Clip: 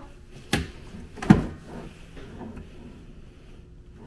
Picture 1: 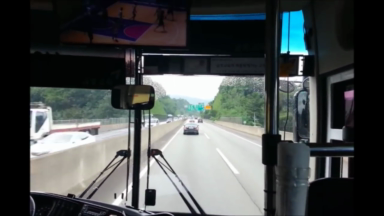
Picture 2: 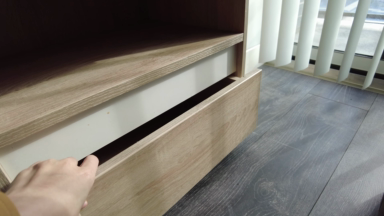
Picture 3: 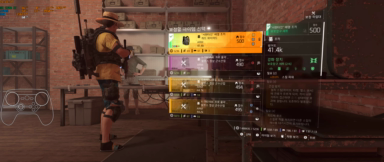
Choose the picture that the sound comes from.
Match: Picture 2